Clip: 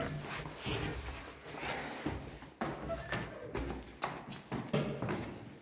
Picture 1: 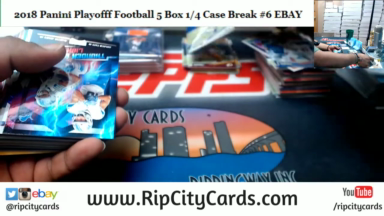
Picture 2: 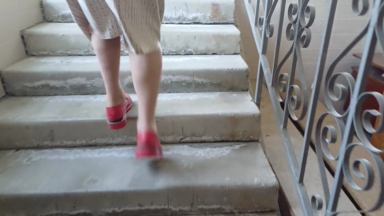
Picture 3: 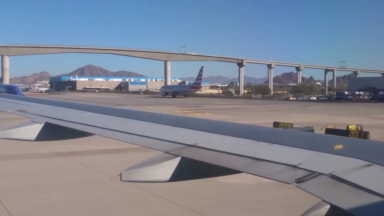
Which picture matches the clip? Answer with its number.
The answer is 2